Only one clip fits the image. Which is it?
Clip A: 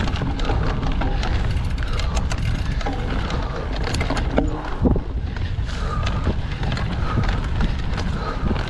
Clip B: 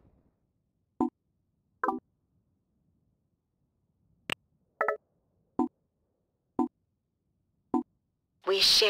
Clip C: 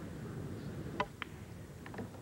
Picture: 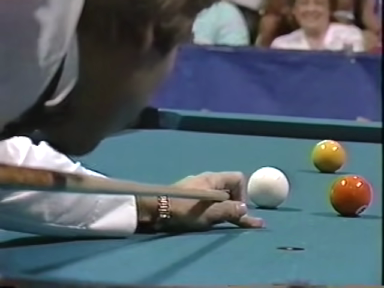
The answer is C